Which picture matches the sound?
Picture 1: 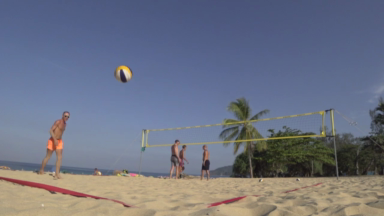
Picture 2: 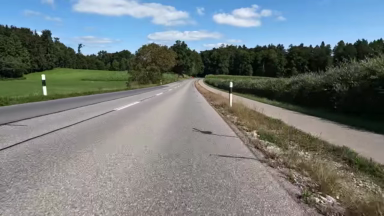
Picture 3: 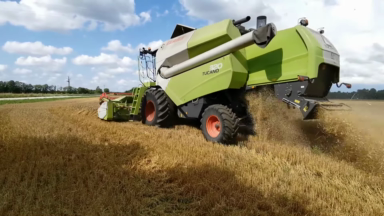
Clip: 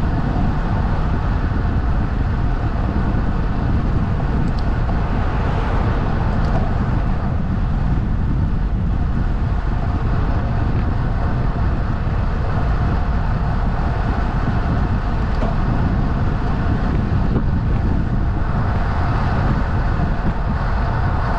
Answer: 2